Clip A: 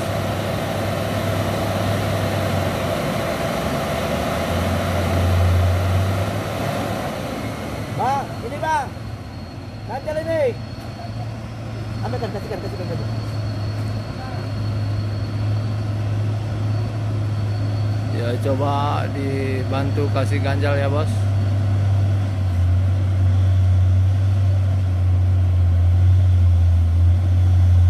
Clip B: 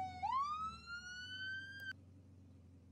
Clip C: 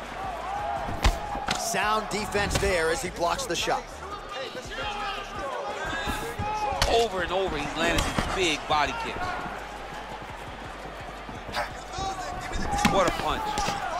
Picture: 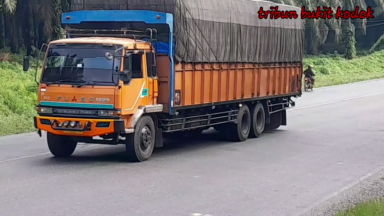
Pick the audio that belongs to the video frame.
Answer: A